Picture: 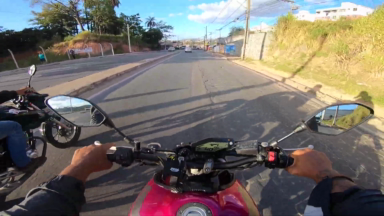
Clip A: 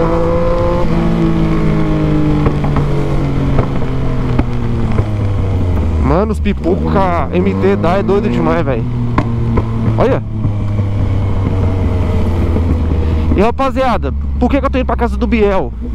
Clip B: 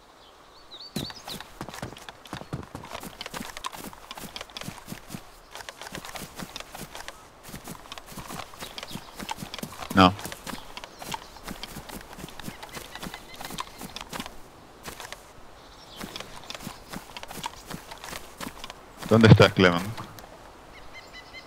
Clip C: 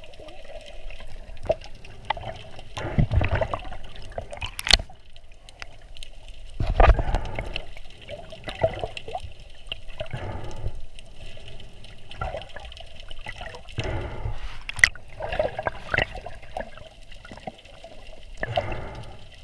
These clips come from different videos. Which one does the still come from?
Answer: A